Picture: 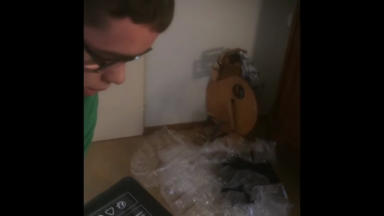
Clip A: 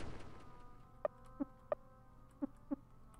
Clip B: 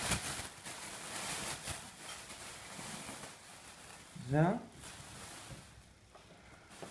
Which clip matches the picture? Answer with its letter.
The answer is B